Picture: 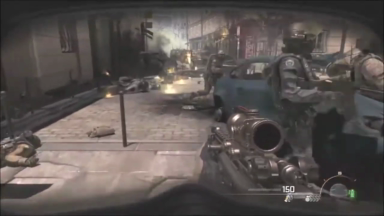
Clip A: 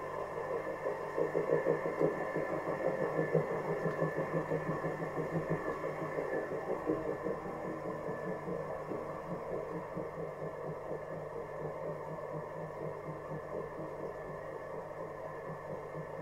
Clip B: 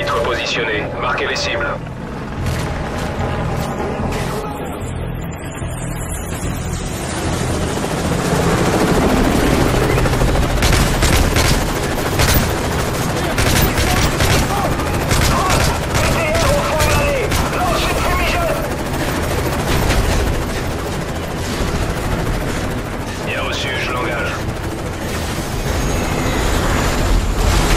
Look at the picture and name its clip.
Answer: B